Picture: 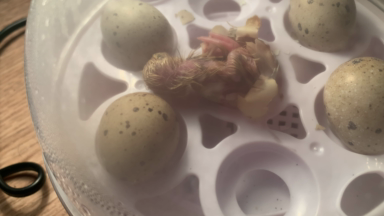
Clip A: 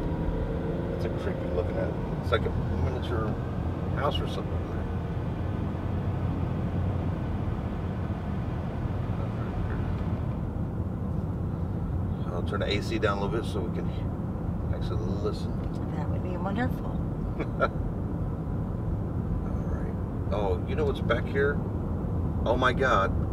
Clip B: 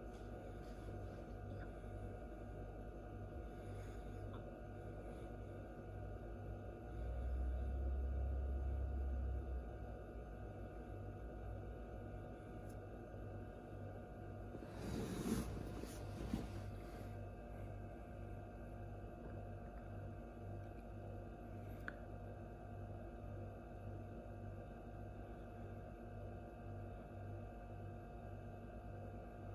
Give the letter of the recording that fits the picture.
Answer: B